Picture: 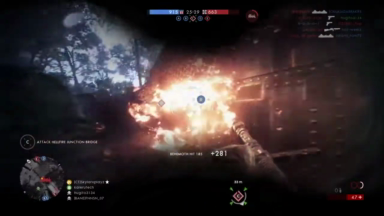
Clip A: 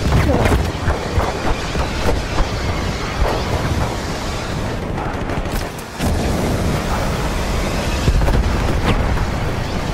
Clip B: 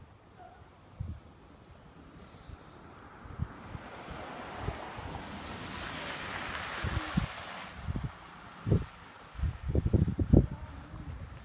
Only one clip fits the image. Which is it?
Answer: A